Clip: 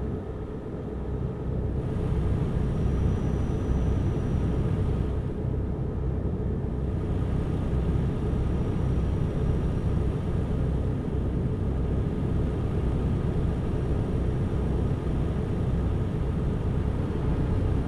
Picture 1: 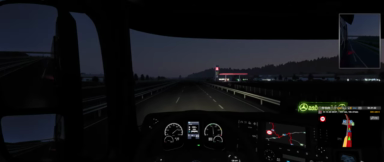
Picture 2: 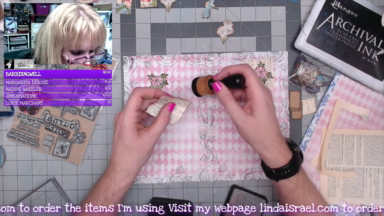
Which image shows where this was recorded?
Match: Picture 1